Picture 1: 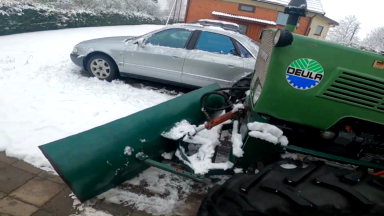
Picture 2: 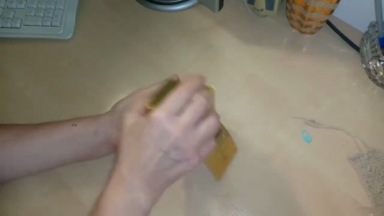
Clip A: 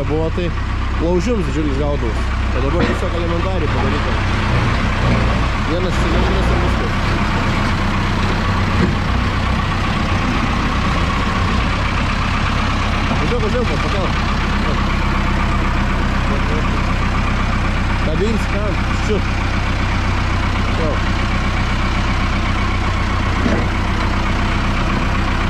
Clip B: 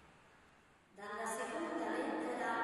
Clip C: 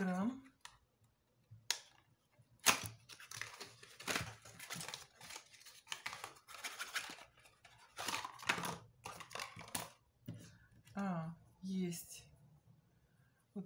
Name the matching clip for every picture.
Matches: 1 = A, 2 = C